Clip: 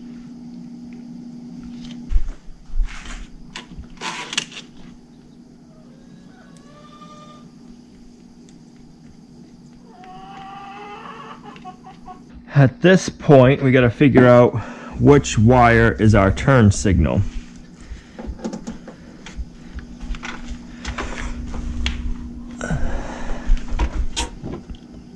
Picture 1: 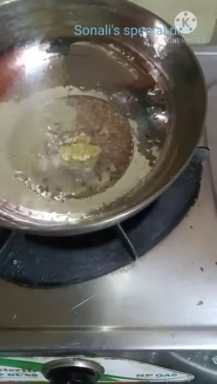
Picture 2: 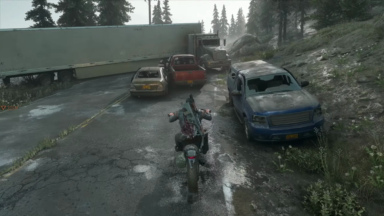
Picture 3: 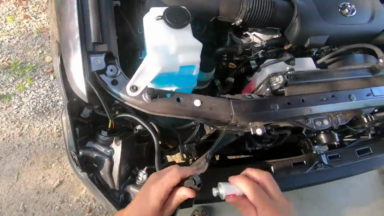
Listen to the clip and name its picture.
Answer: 3